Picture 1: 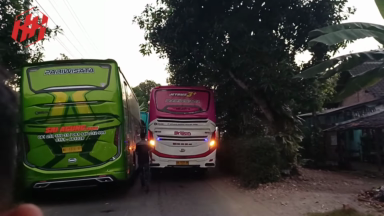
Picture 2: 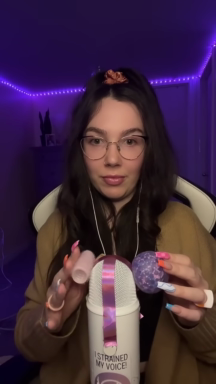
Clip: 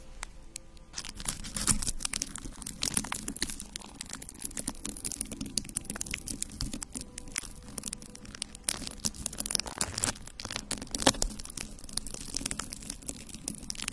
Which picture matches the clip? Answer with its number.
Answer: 2